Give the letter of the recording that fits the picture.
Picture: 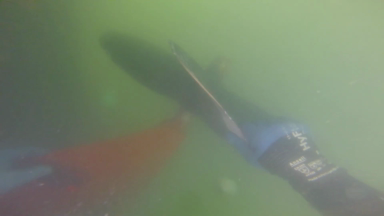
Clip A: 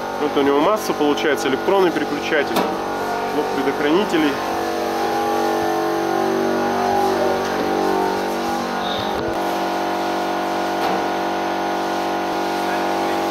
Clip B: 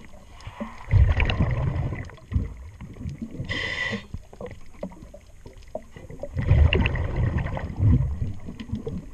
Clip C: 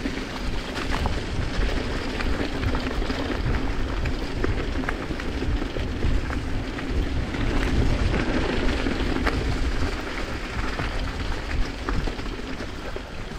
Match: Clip B